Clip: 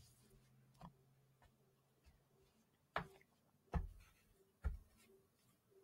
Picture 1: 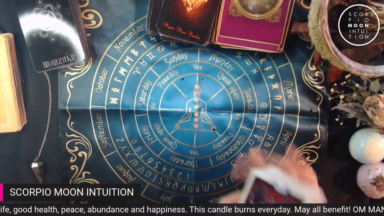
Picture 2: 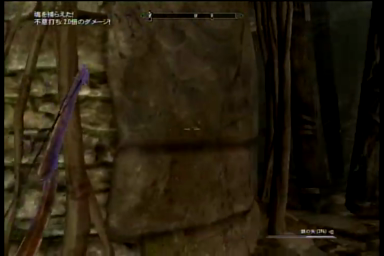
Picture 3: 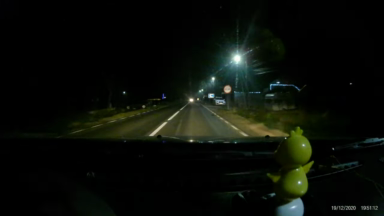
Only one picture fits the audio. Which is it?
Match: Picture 1